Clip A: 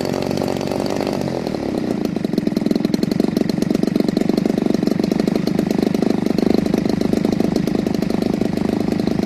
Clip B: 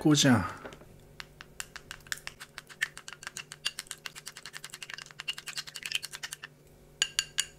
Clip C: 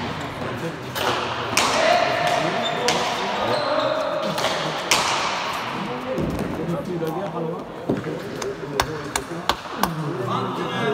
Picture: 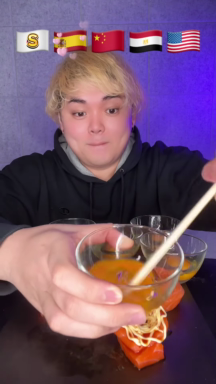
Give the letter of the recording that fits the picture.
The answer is B